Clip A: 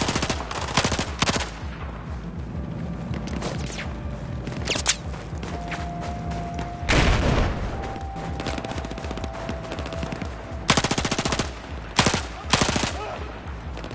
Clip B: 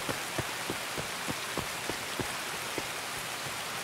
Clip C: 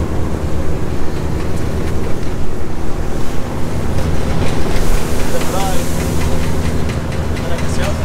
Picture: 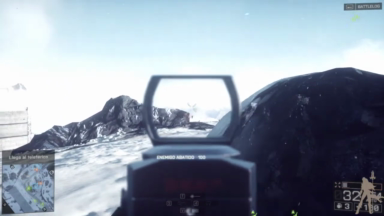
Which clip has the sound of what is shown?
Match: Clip A